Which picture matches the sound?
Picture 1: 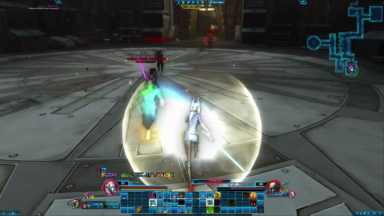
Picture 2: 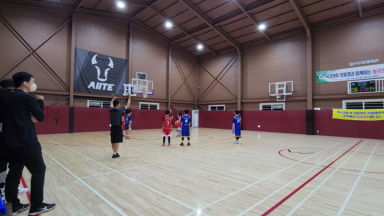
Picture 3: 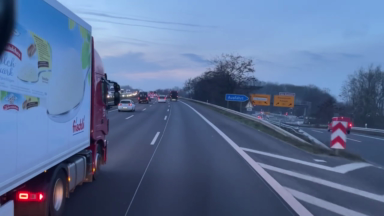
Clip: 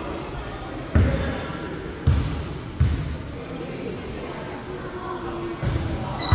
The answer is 2